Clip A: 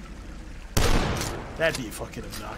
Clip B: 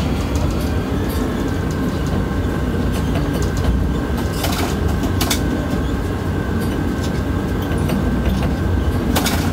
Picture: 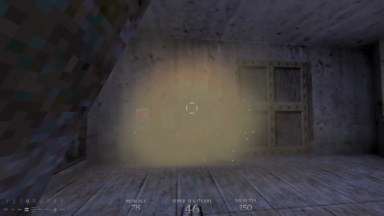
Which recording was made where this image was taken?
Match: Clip A